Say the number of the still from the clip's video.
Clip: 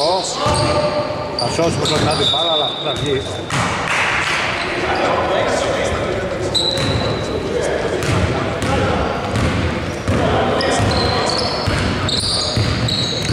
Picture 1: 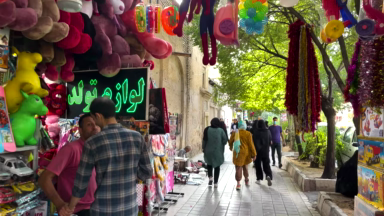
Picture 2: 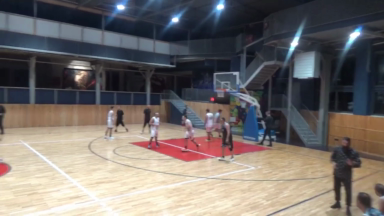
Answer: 2